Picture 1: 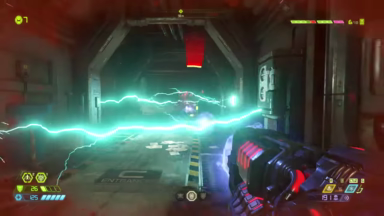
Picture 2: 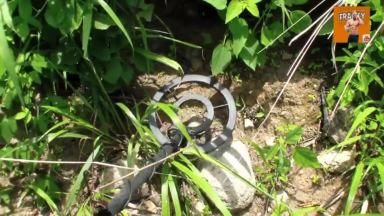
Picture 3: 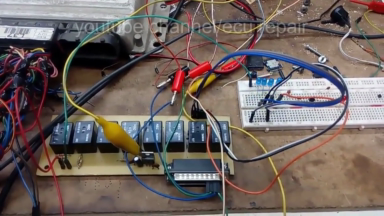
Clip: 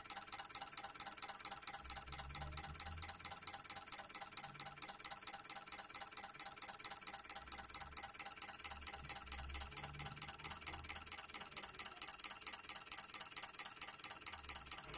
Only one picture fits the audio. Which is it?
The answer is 3